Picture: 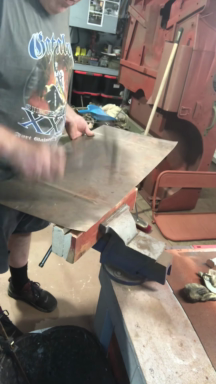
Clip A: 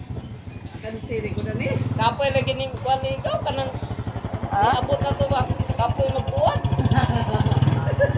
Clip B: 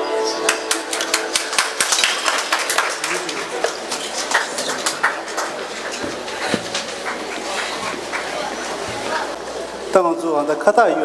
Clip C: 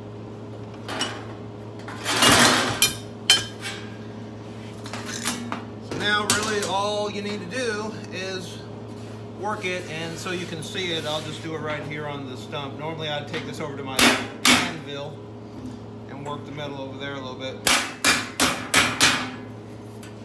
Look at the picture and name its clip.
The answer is C